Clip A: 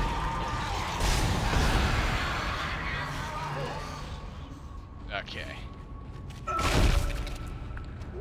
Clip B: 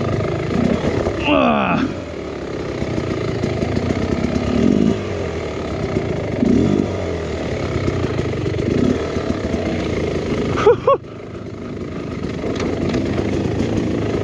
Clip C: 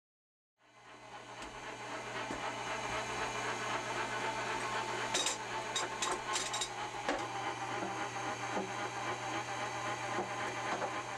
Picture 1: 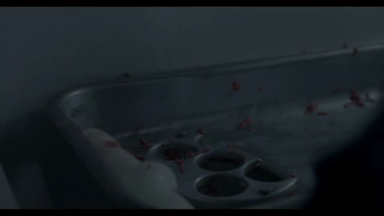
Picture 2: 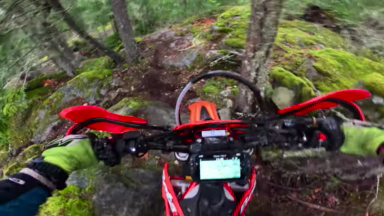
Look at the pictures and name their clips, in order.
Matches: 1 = C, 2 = B